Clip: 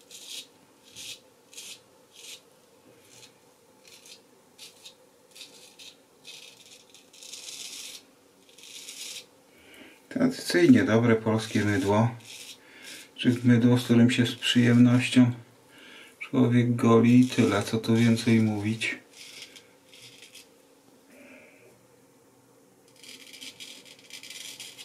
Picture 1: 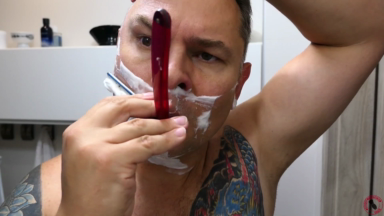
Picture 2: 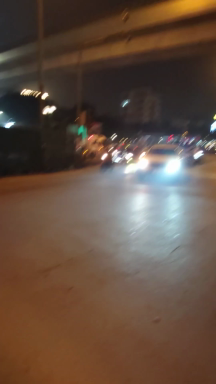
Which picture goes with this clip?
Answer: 1